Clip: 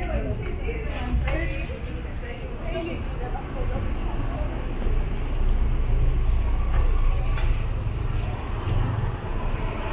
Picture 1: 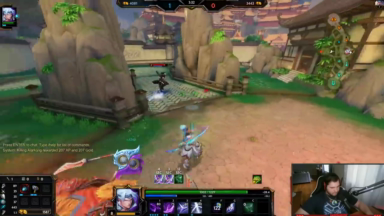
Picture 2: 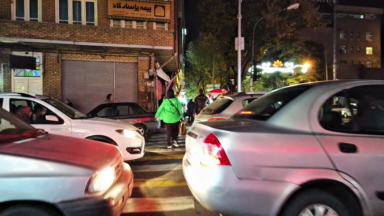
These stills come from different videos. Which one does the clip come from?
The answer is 2